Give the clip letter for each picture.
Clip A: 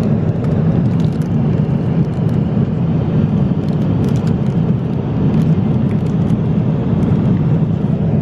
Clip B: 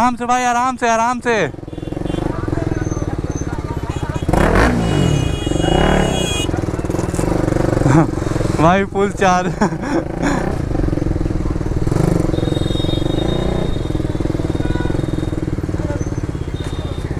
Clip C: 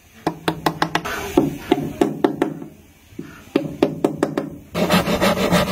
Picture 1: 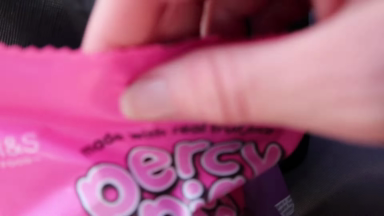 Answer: A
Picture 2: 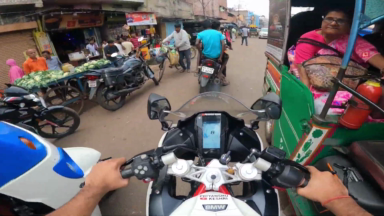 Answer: B